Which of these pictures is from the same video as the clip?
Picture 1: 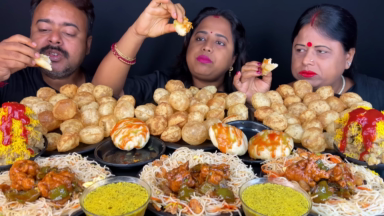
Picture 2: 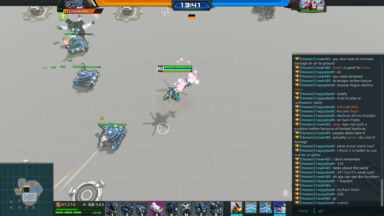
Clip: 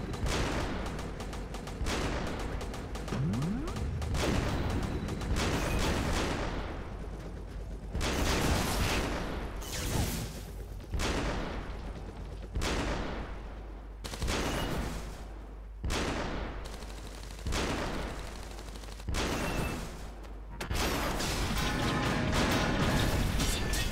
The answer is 2